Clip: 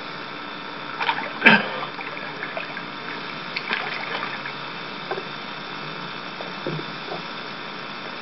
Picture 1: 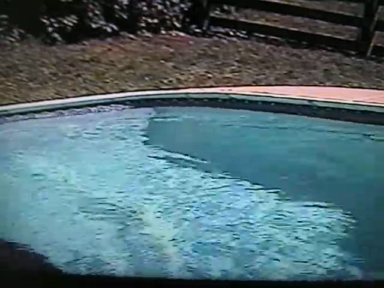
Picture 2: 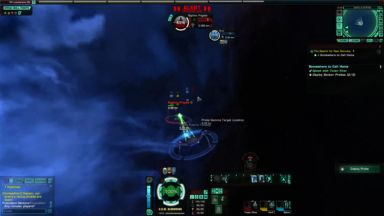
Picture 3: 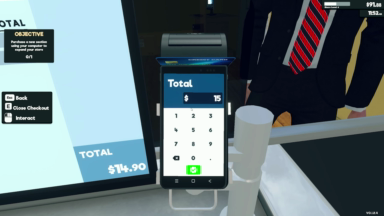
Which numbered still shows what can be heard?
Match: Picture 1